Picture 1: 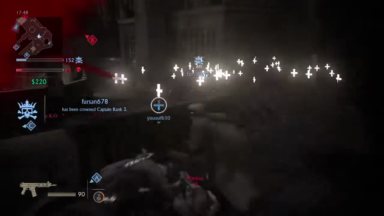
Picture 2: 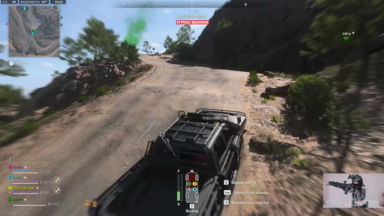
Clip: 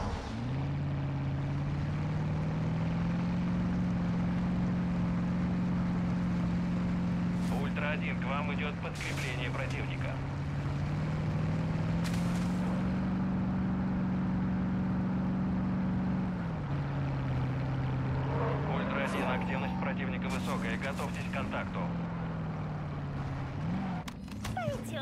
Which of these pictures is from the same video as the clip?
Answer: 2